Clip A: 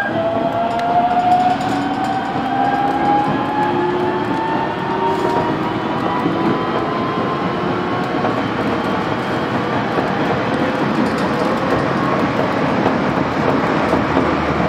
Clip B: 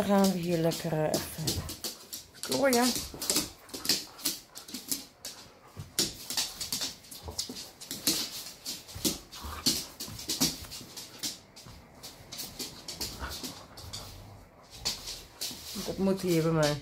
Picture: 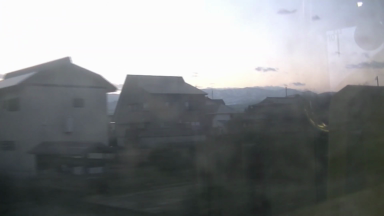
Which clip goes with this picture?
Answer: A